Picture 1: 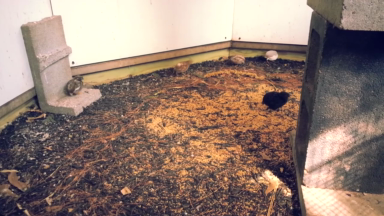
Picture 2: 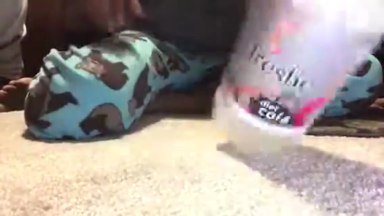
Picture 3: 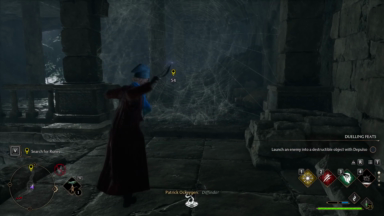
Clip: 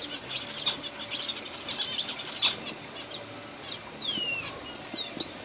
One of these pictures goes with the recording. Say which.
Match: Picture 1